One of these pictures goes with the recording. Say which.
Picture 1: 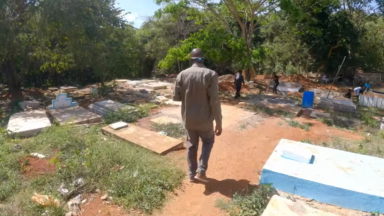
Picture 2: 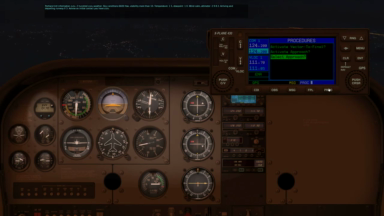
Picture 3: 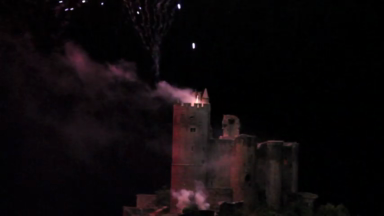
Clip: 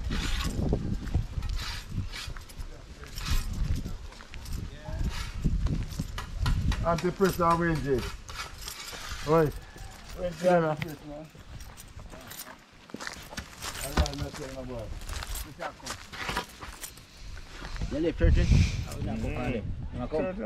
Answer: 1